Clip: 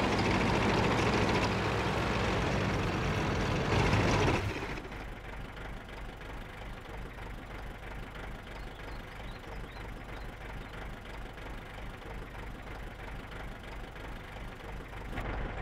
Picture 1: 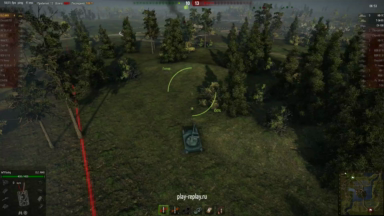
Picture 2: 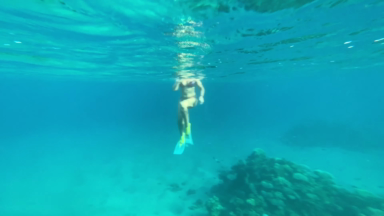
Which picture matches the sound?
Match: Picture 1